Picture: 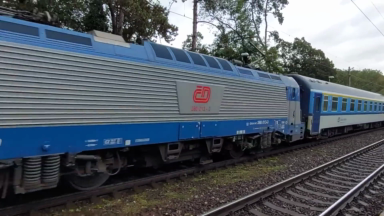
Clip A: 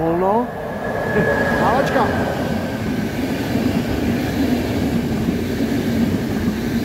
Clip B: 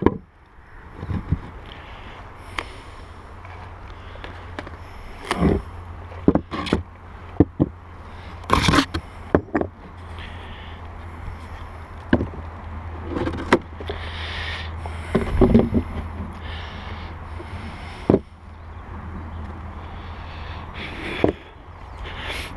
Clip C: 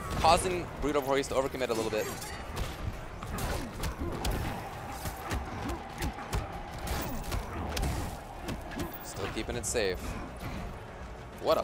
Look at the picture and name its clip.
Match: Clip A